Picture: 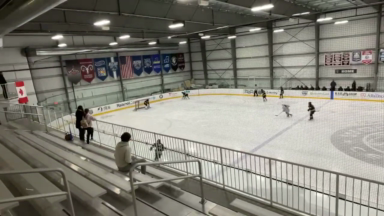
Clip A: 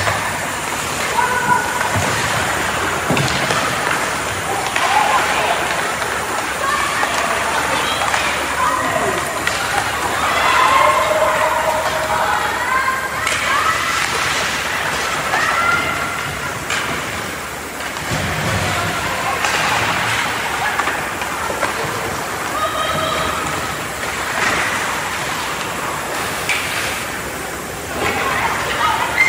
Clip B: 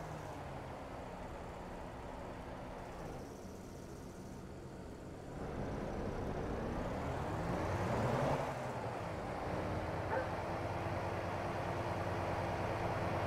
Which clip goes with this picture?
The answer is A